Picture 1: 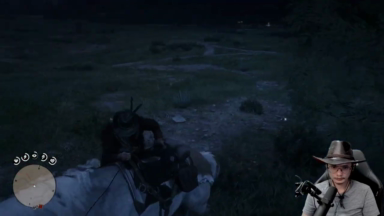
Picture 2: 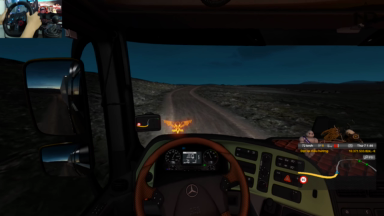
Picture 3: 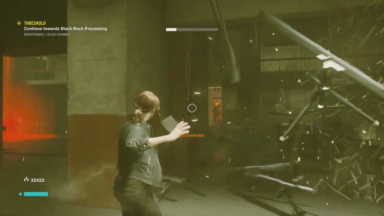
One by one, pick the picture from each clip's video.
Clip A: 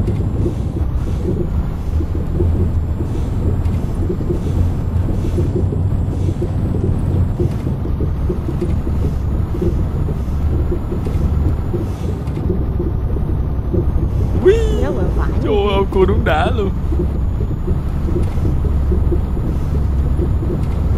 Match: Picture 2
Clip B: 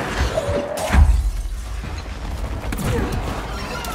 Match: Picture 3